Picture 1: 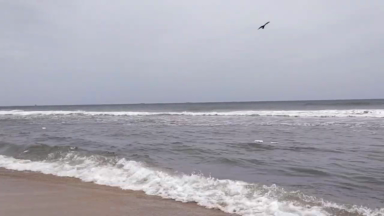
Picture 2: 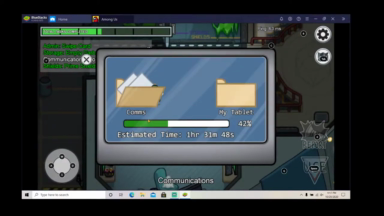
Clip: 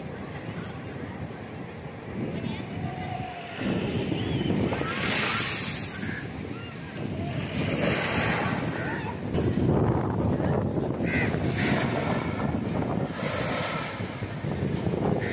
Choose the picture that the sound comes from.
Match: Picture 1